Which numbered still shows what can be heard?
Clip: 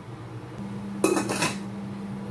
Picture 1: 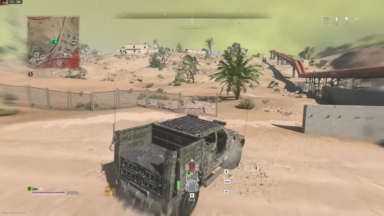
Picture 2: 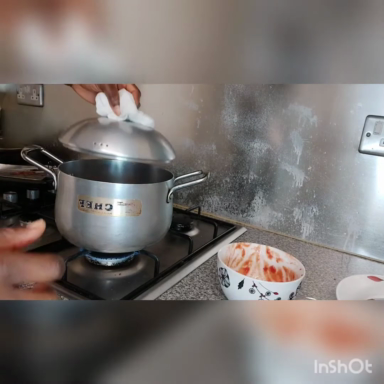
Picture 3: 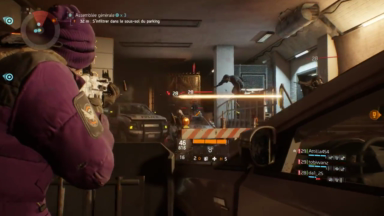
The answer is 2